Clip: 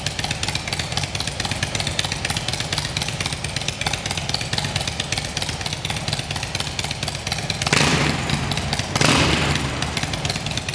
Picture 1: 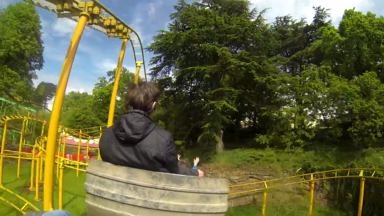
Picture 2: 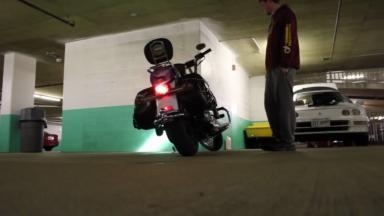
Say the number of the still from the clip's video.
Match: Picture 2